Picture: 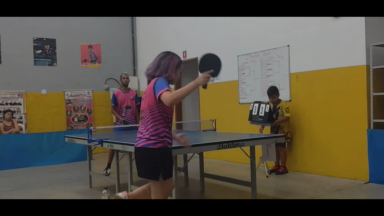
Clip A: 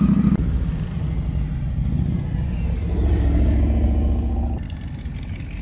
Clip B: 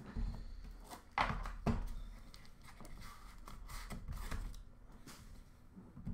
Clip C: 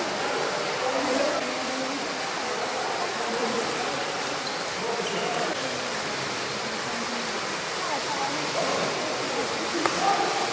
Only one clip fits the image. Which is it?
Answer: C